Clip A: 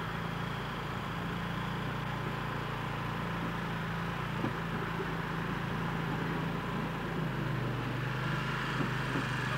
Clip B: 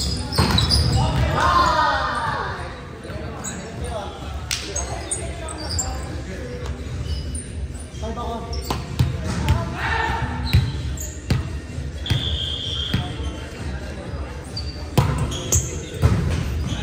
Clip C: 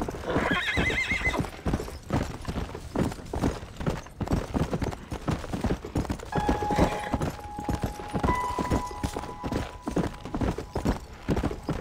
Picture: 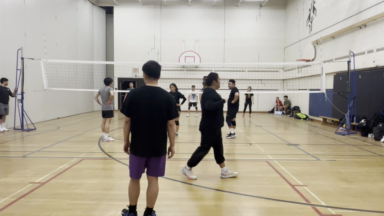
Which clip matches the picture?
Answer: B